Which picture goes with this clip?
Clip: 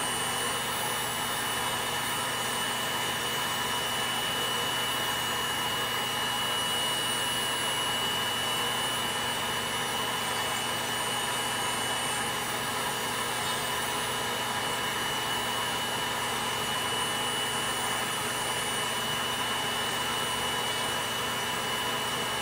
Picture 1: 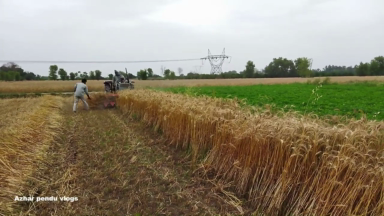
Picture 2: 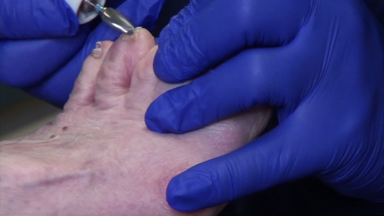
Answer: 2